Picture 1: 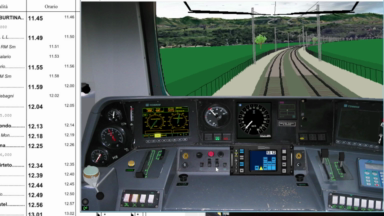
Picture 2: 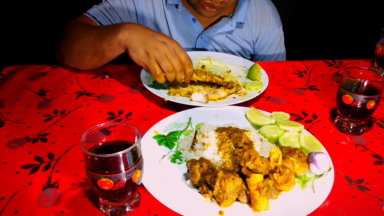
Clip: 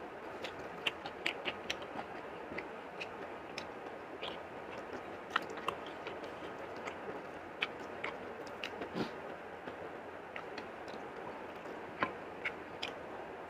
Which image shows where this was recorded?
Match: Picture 2